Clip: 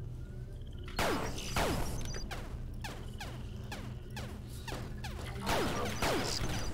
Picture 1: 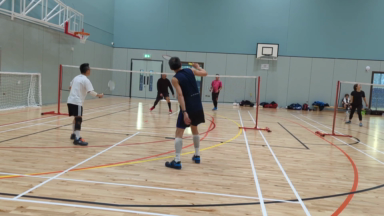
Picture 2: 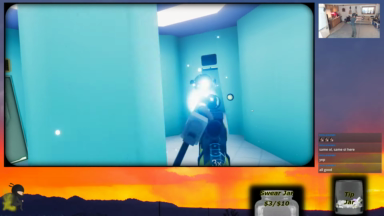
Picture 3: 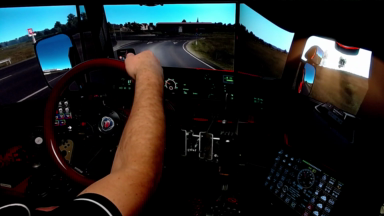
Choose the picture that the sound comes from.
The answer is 2